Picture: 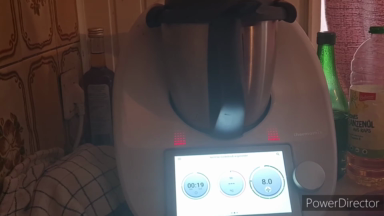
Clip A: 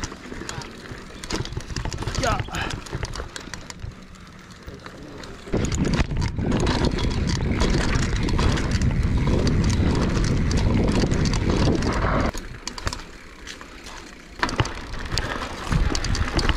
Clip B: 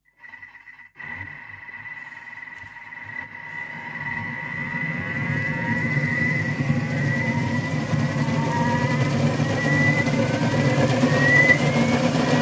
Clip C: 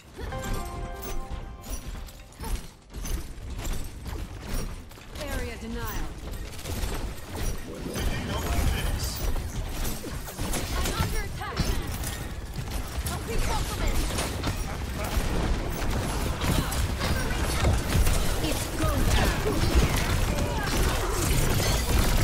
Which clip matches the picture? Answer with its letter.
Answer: B